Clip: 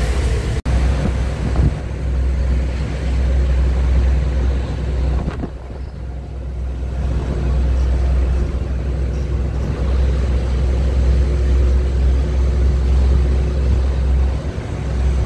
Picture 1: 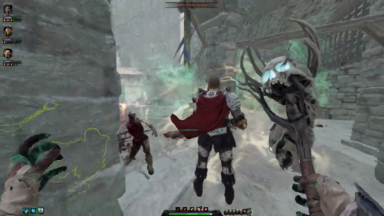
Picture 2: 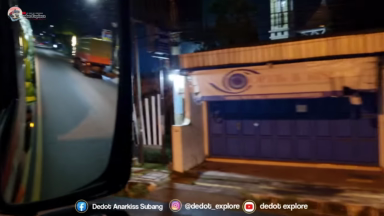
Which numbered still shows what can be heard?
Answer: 2